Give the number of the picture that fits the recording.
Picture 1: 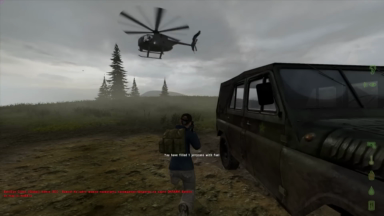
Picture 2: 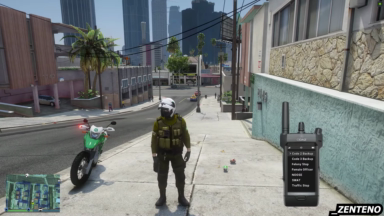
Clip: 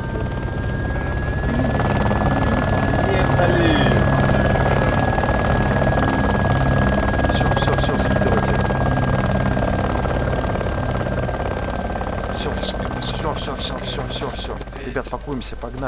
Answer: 1